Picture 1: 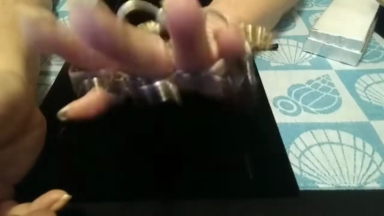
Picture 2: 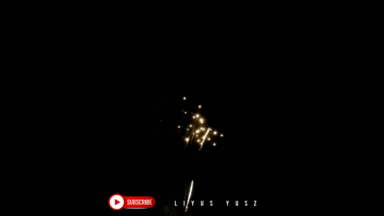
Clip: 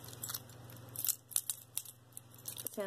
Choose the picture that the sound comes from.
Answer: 1